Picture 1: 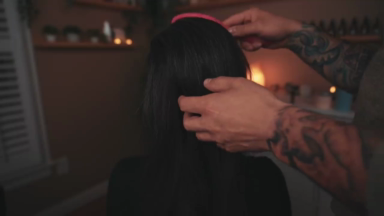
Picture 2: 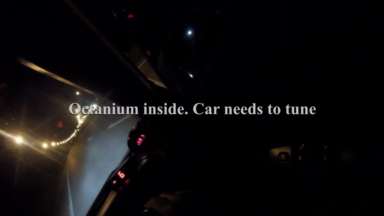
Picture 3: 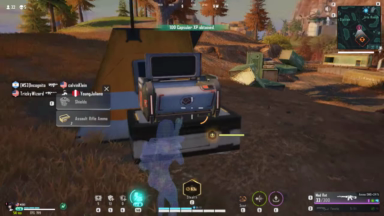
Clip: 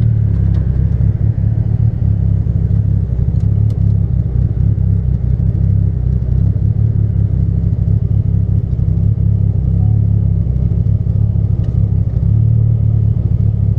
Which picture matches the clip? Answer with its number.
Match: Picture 2